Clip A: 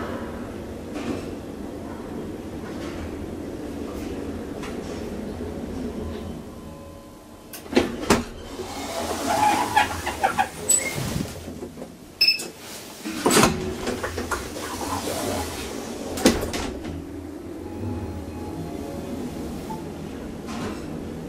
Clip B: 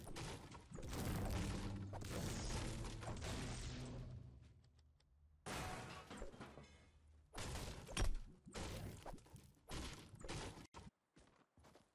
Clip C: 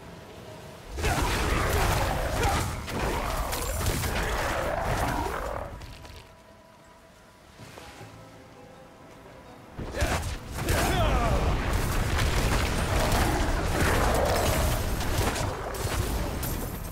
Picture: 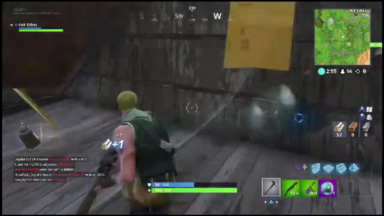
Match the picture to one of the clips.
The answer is B